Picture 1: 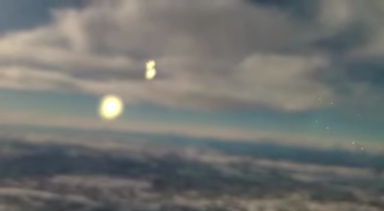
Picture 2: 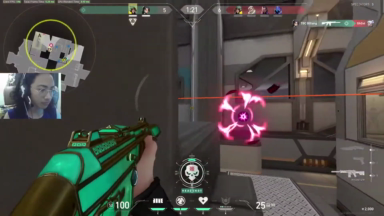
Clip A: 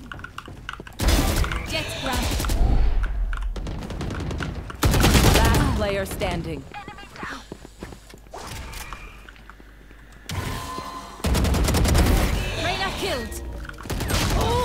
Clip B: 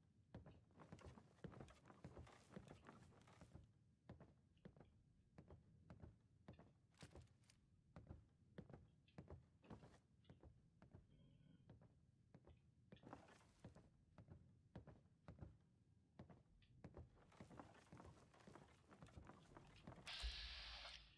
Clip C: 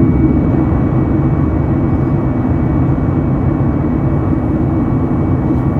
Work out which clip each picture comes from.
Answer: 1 C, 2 A